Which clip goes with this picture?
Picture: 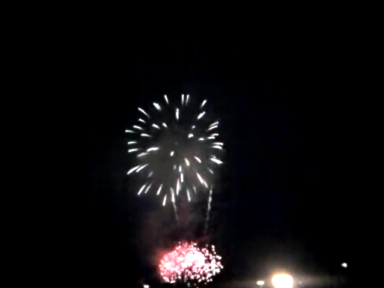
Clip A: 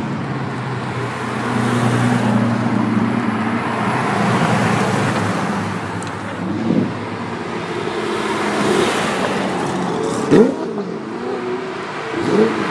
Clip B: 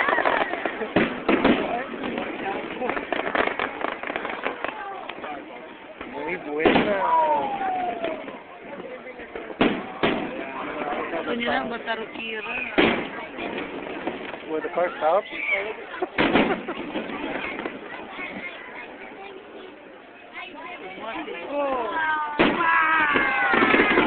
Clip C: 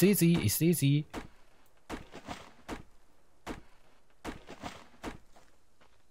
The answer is B